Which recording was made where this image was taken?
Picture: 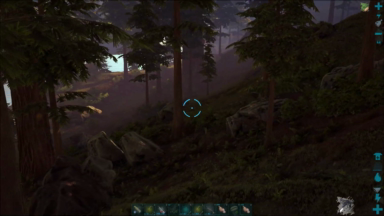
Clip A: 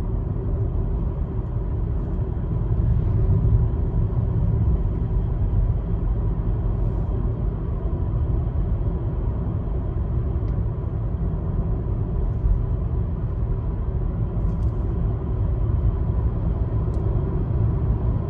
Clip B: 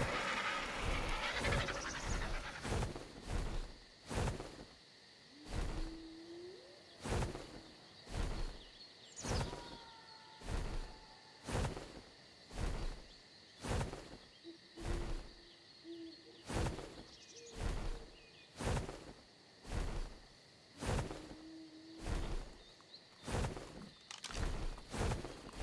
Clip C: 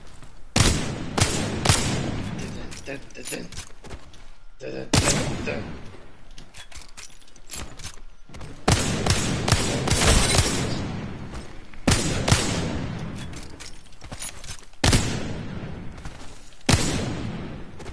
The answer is B